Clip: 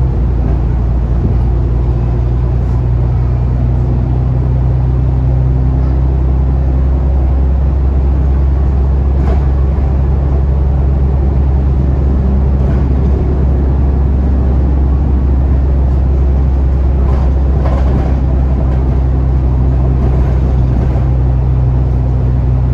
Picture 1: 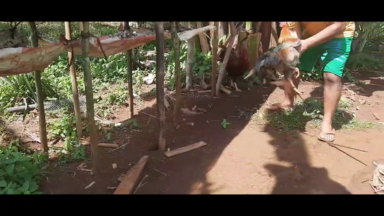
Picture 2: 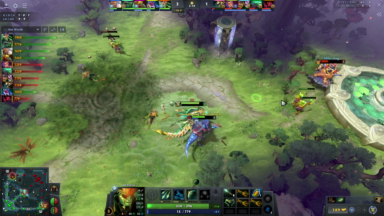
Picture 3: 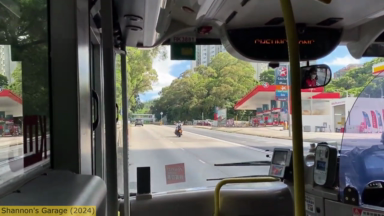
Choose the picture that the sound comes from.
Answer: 3